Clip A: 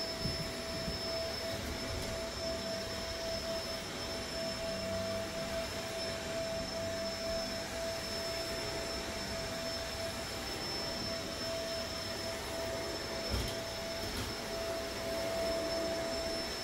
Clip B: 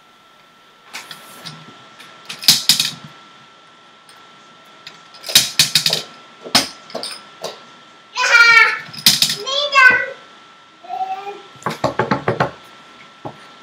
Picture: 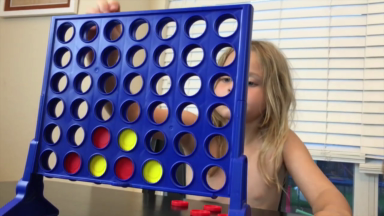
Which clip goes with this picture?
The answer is B